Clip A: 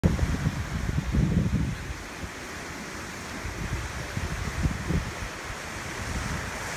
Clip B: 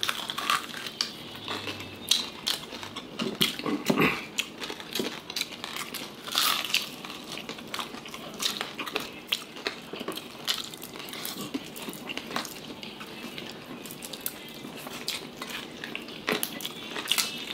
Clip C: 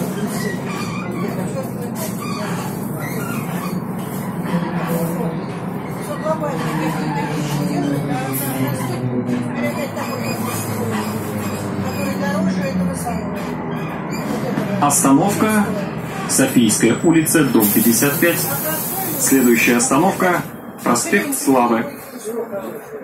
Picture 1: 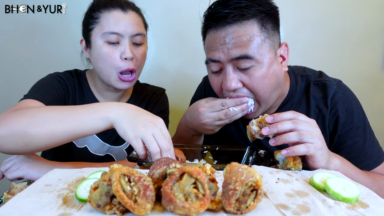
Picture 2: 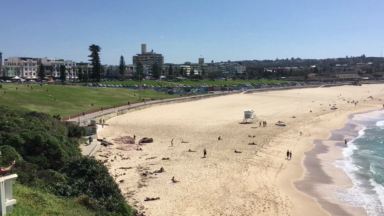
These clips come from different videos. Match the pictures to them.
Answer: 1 B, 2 A